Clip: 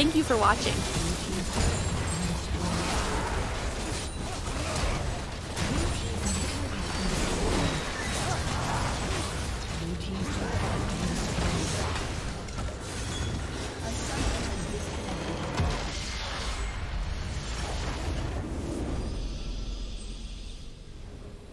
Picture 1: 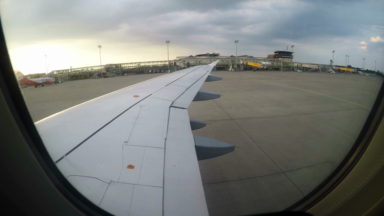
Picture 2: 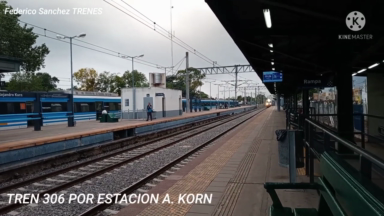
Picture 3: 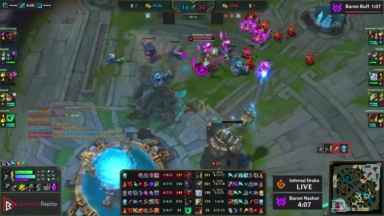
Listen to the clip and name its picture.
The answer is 3